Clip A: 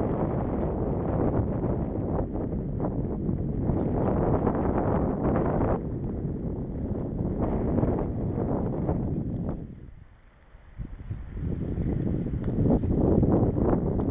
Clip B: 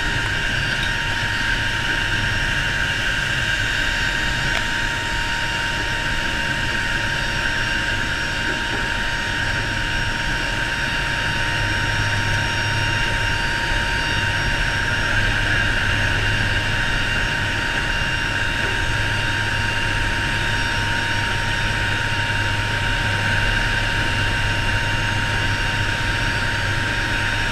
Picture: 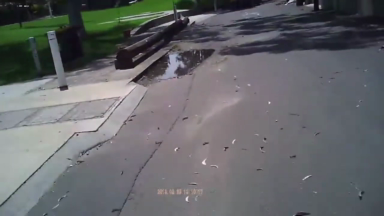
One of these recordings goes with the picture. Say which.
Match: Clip A